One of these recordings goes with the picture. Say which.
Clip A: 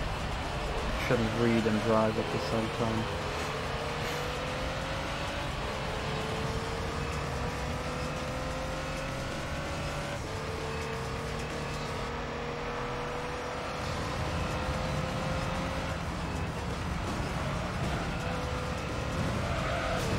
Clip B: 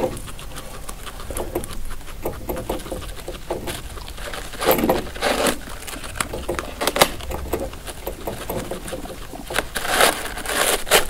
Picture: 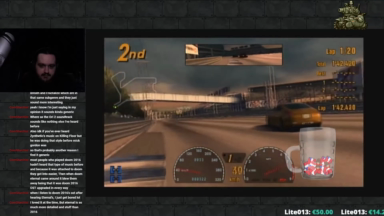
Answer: A